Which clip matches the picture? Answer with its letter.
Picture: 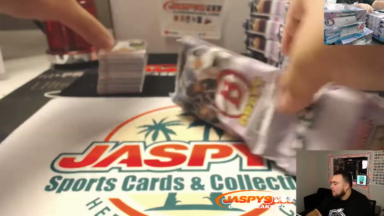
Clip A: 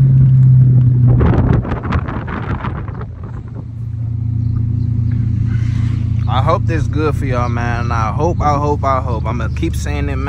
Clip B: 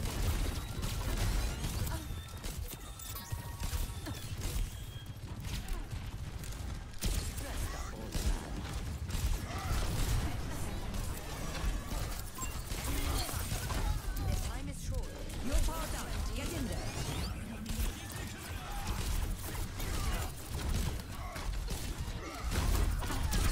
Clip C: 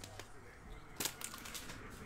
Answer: C